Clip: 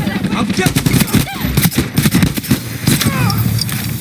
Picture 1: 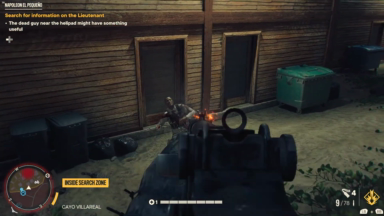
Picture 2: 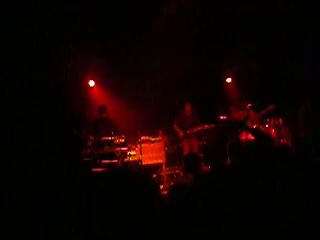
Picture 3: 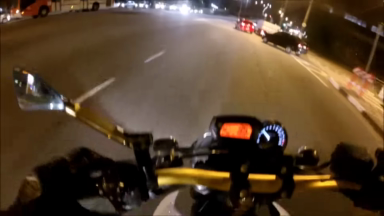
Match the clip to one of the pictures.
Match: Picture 1